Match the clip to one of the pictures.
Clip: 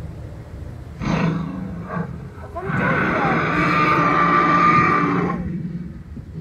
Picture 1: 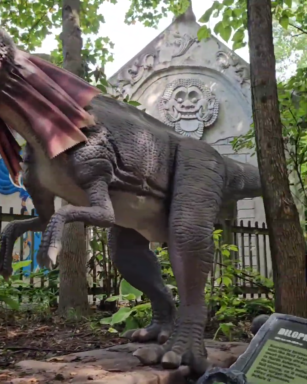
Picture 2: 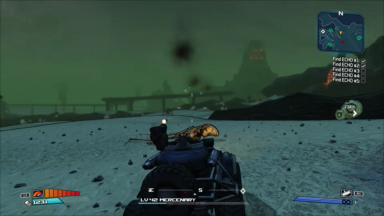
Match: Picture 1